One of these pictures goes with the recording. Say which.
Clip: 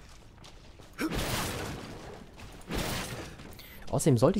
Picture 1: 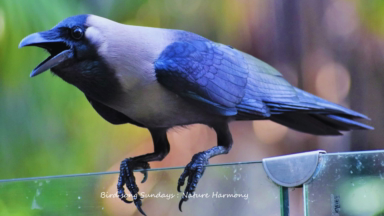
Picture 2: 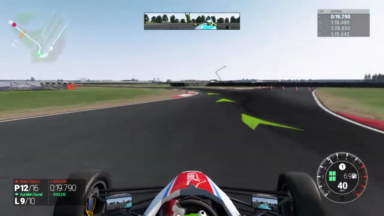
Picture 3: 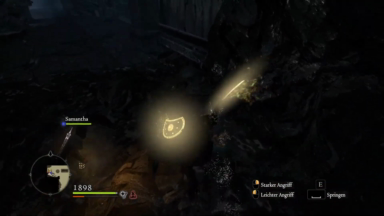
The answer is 3